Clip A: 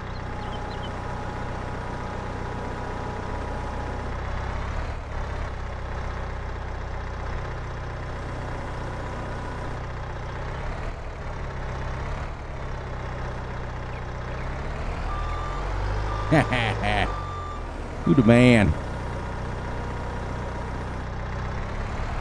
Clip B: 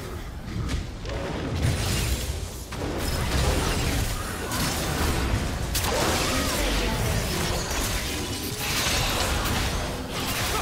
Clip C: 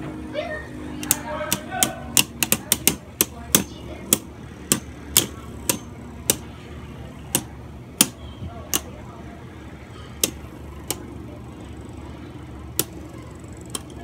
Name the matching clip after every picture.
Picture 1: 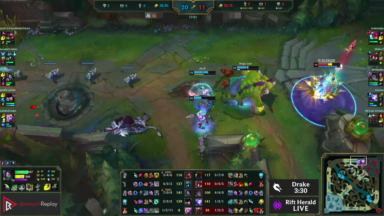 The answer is B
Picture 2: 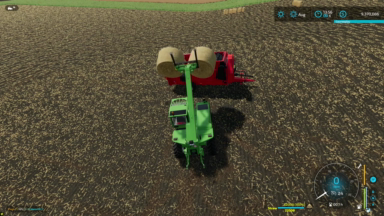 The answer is A